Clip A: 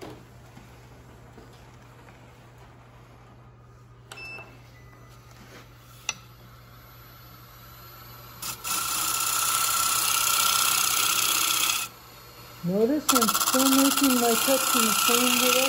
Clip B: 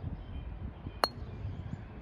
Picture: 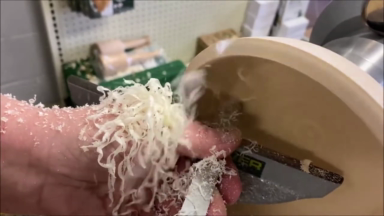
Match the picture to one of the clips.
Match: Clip A